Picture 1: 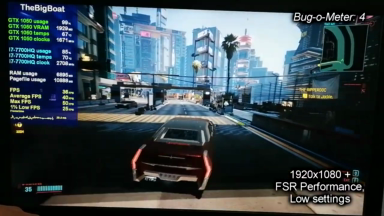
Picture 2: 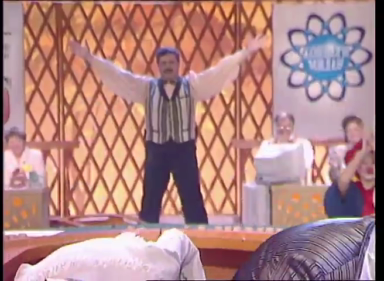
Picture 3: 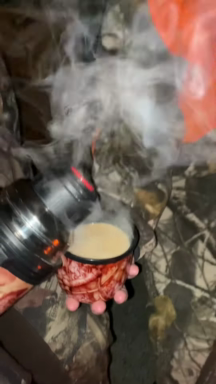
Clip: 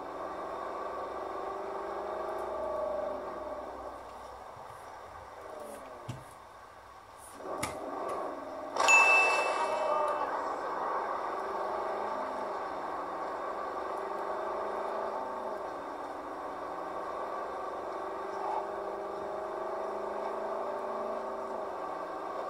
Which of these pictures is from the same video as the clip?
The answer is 1